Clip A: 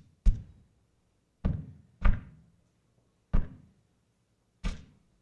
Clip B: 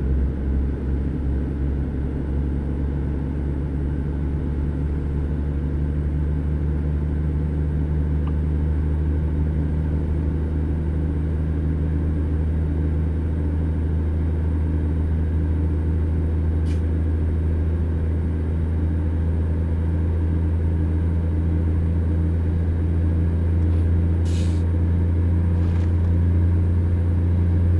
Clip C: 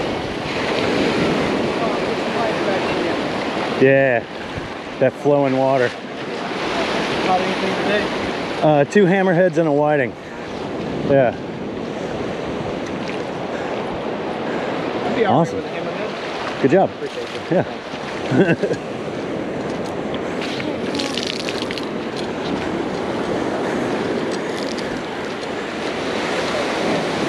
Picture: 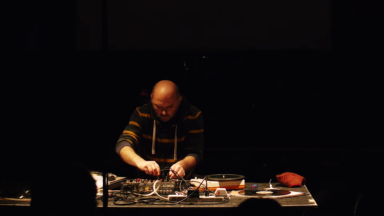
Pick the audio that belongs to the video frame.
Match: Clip A